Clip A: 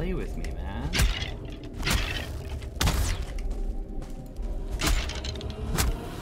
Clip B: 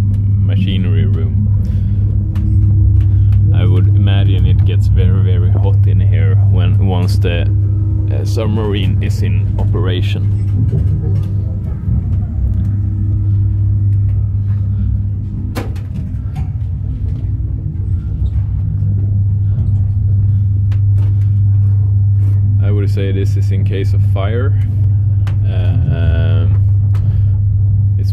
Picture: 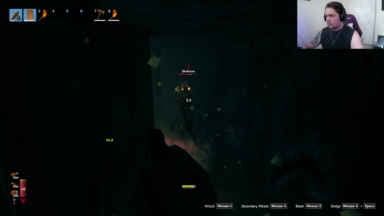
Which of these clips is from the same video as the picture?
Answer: A